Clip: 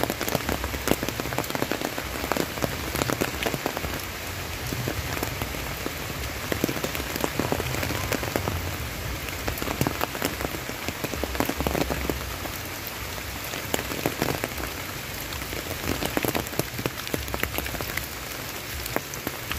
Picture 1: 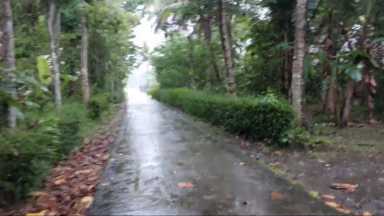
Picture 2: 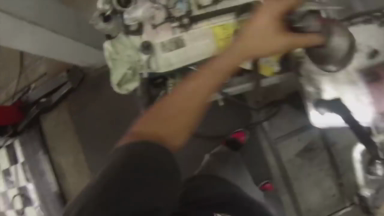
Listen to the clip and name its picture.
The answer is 1